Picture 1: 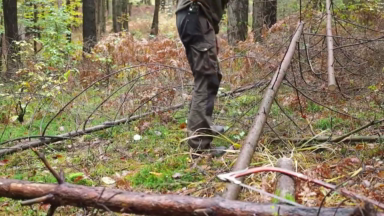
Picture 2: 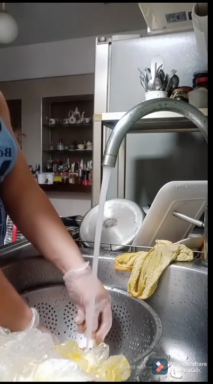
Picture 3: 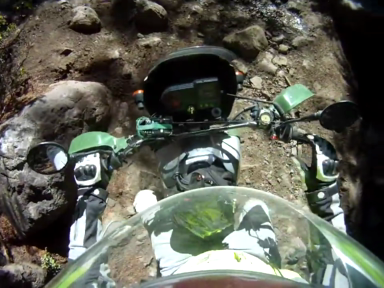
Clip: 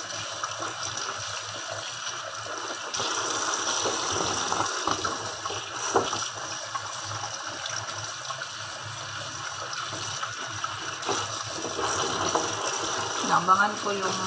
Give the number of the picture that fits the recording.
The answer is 2